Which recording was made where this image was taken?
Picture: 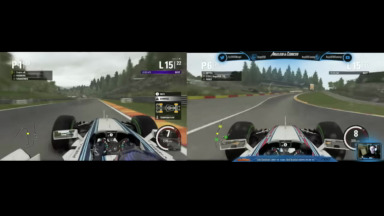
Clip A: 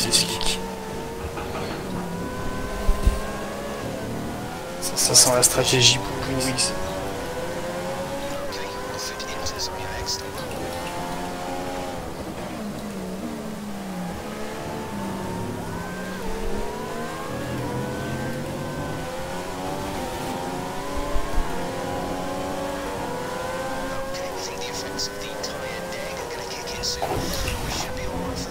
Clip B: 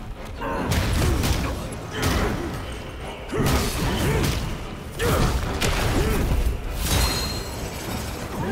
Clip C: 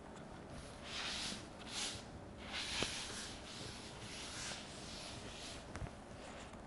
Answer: A